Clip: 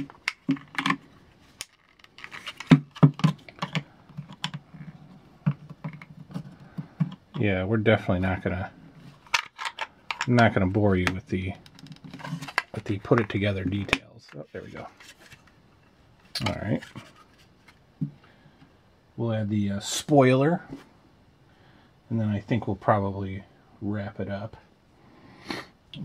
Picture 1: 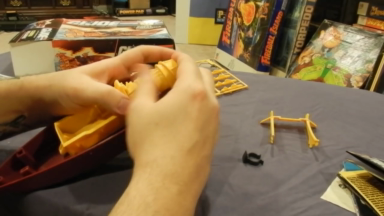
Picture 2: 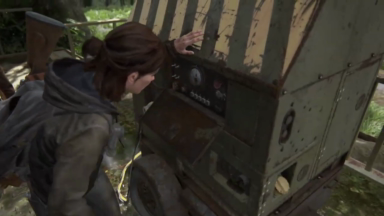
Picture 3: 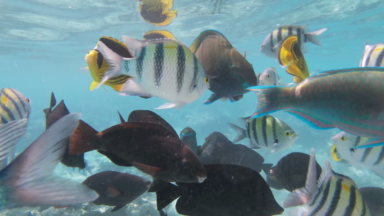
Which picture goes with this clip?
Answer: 1